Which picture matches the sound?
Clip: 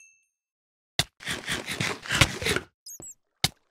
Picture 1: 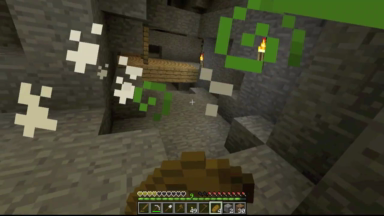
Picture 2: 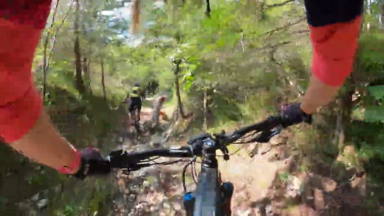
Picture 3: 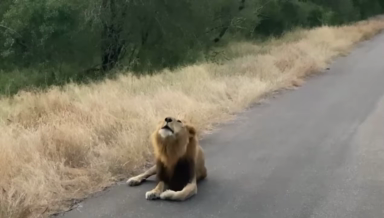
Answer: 1